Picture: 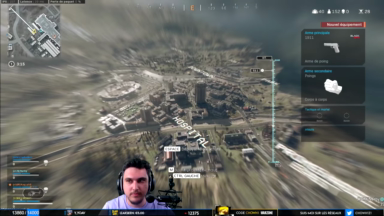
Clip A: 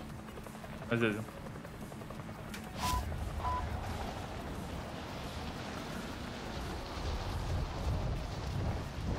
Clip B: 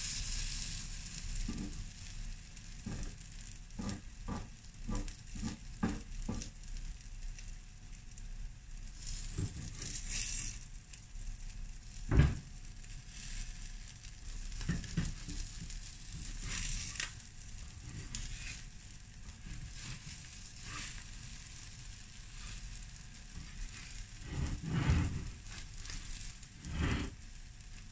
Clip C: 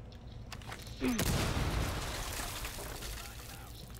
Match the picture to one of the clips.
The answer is A